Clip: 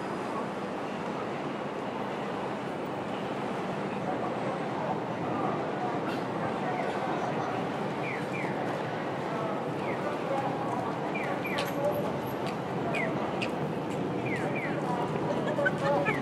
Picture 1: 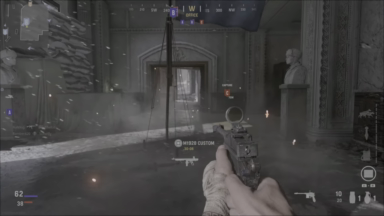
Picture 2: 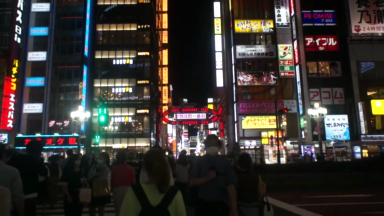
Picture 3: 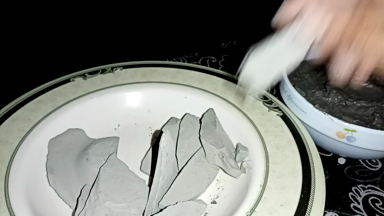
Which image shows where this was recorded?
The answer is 2